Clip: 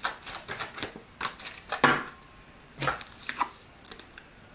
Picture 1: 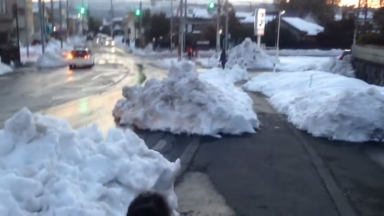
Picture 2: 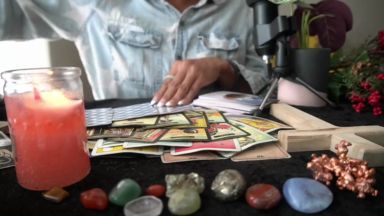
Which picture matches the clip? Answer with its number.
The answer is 2